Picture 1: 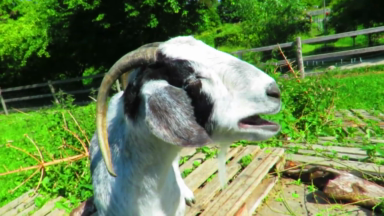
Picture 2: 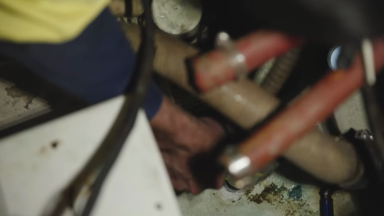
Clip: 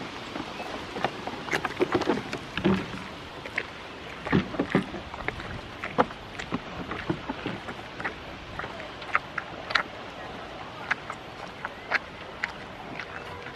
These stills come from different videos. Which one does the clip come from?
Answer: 1